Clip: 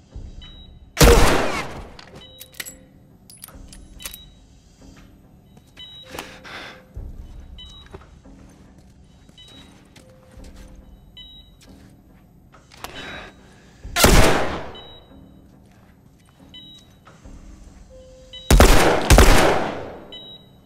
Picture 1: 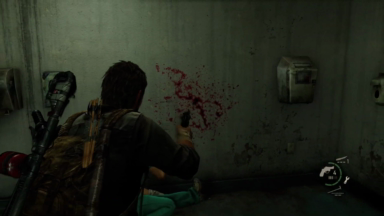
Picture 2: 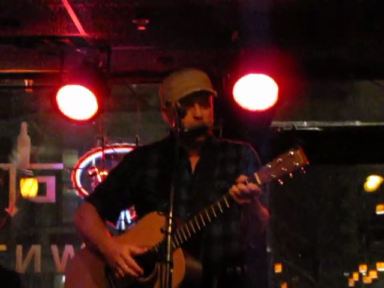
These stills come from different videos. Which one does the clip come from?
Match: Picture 1